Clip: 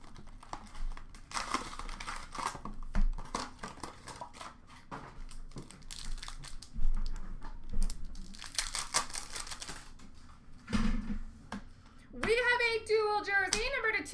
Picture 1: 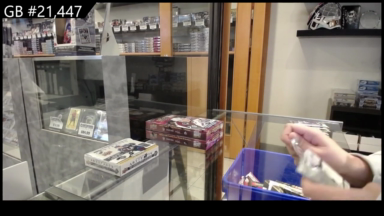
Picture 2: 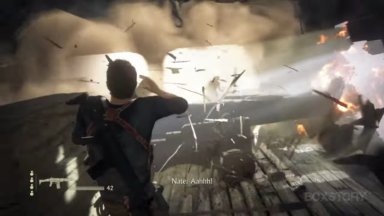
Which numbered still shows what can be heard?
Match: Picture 1